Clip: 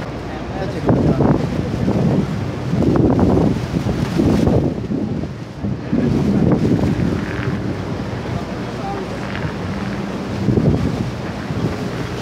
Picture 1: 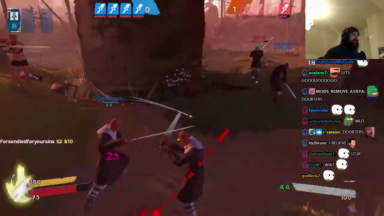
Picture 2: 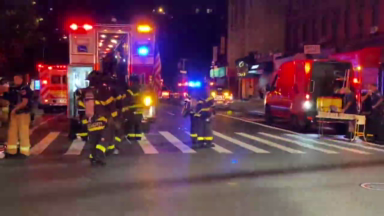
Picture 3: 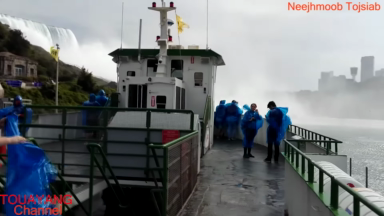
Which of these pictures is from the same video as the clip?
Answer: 3